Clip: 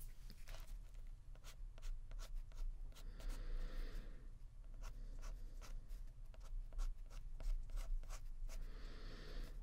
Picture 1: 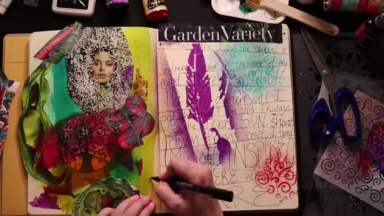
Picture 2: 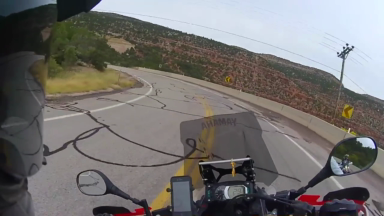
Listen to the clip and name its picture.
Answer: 1